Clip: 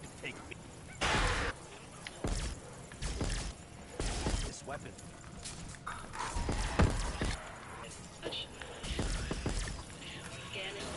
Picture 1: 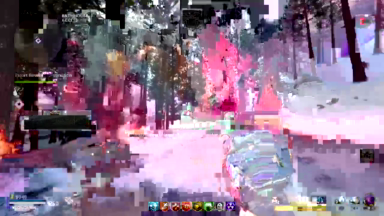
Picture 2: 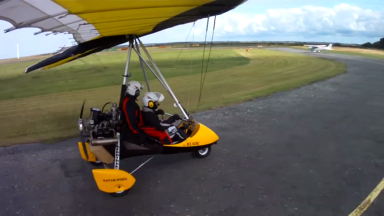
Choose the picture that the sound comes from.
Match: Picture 1